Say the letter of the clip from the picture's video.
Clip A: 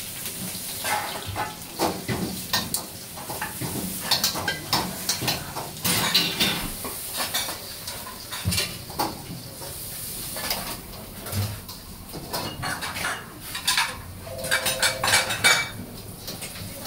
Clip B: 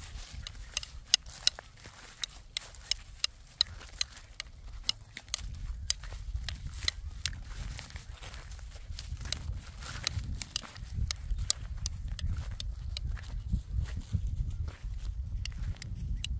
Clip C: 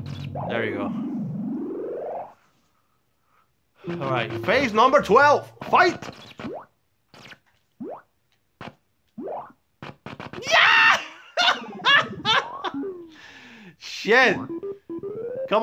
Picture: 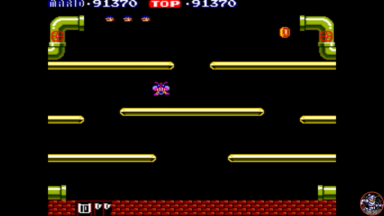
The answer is C